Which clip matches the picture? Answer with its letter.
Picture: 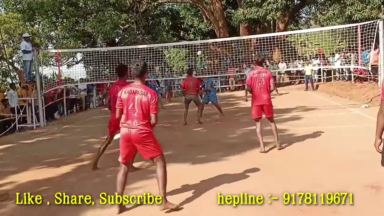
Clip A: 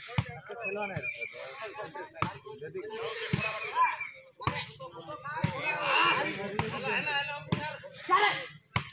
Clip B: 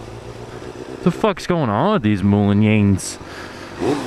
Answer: A